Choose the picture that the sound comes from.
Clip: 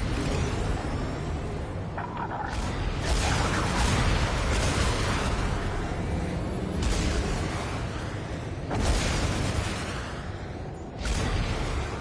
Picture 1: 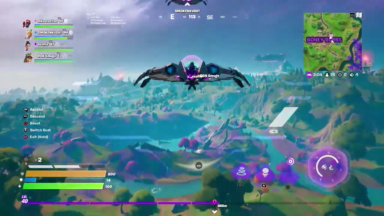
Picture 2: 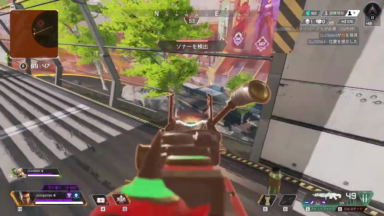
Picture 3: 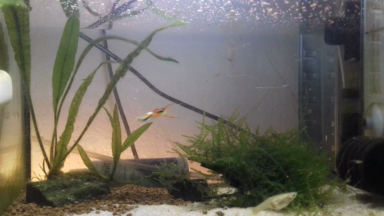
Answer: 1